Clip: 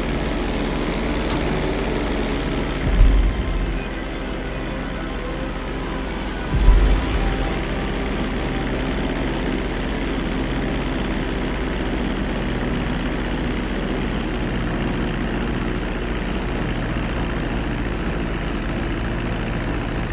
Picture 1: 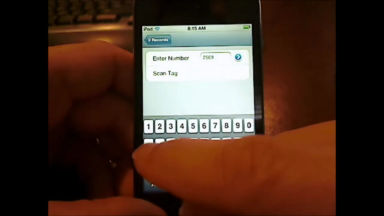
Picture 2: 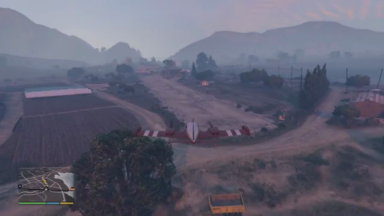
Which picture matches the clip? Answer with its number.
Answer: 2